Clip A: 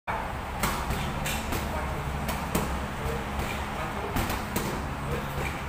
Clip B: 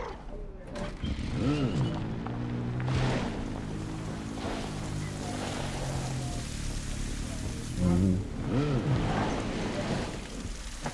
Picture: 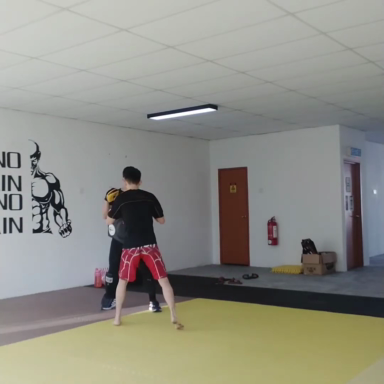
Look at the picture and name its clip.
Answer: A